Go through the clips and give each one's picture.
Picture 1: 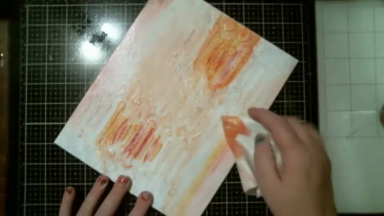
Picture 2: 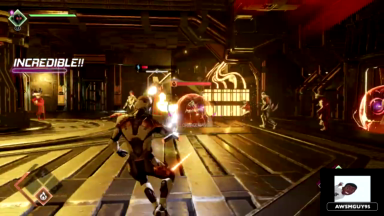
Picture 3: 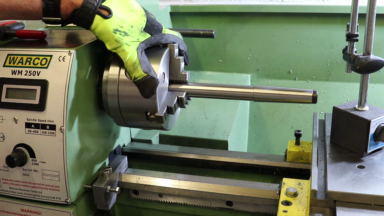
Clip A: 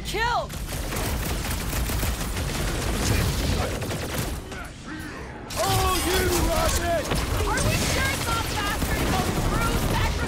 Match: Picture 2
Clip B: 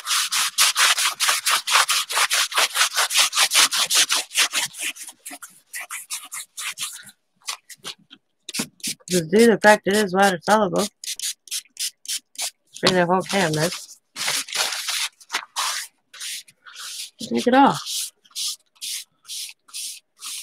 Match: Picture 1